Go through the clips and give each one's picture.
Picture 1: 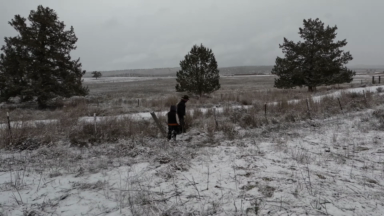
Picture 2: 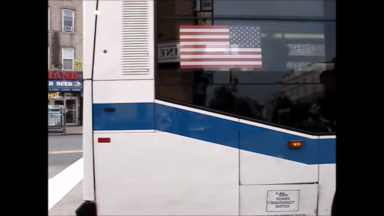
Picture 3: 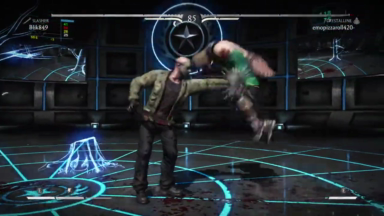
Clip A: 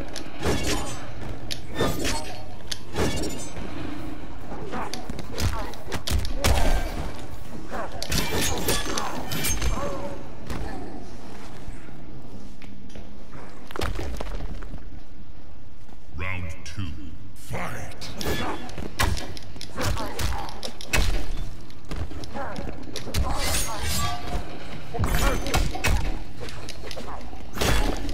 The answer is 3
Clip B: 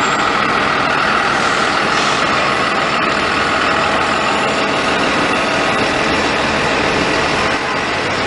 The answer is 2